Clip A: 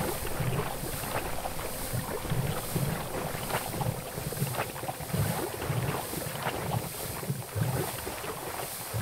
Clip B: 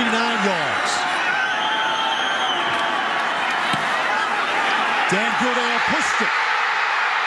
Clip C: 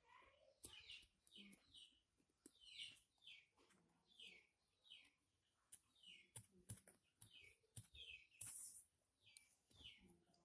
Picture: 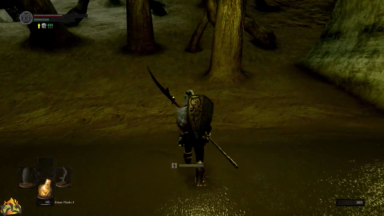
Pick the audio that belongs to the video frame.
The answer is A